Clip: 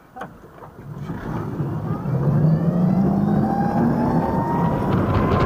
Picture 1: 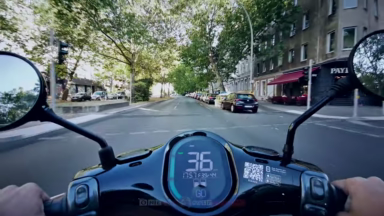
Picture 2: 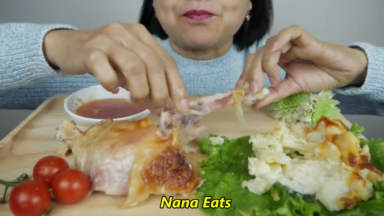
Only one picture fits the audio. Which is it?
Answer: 1